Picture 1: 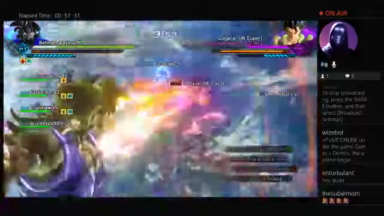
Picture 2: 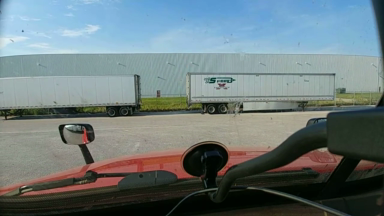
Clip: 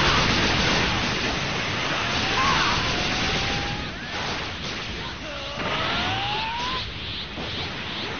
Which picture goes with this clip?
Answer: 1